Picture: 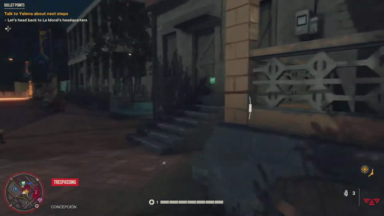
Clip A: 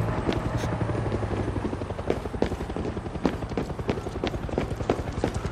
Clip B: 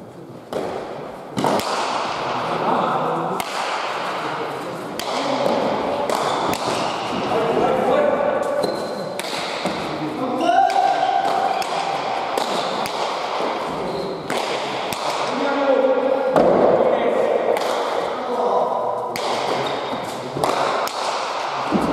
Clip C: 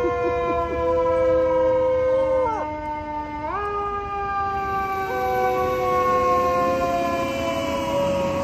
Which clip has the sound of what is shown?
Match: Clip A